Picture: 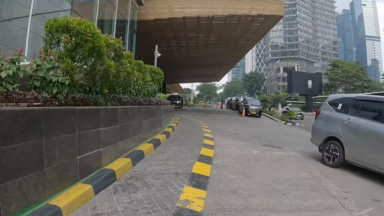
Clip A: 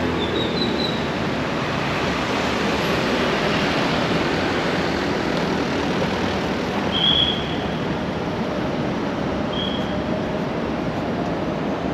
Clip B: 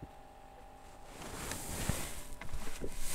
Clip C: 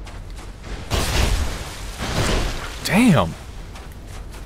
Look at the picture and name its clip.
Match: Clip A